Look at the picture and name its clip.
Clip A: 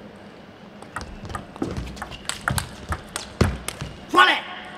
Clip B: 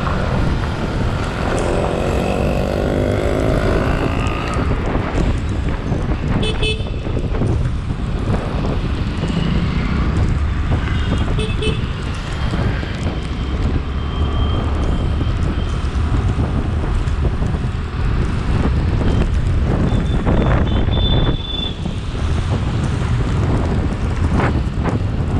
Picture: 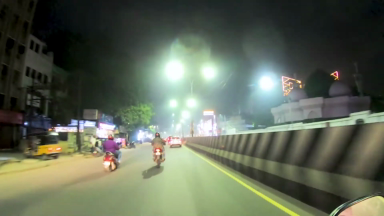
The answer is B